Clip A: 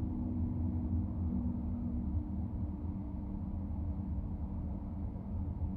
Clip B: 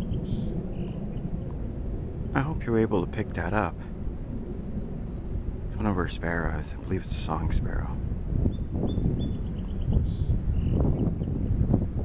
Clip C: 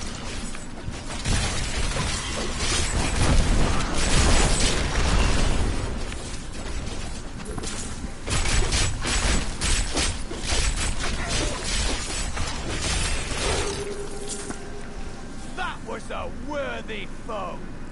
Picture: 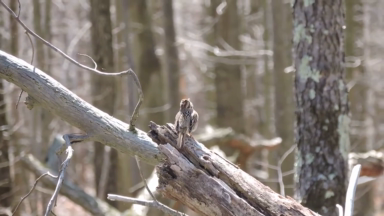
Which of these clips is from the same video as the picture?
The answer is B